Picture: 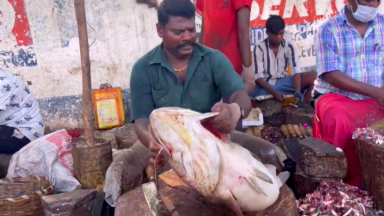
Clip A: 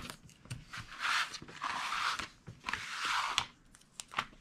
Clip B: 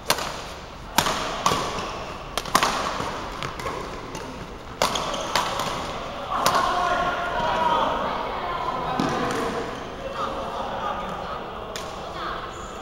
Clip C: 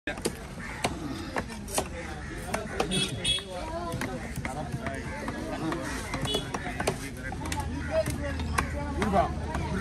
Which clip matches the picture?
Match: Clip C